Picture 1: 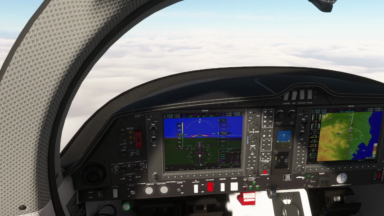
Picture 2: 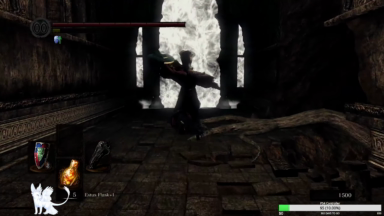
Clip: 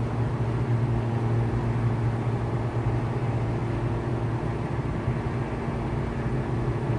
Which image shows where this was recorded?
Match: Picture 1